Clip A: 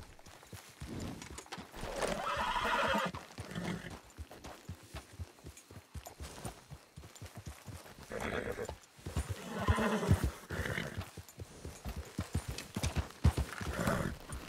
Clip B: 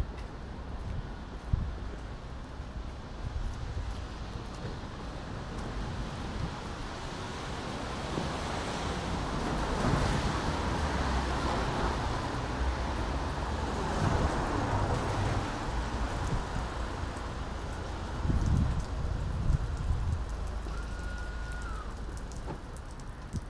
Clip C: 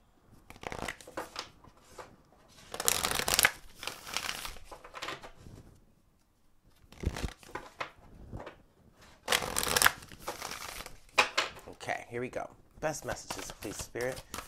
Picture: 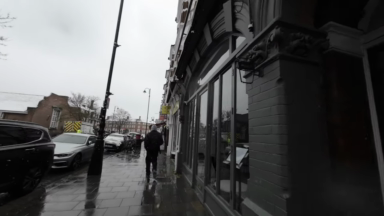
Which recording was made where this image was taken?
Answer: B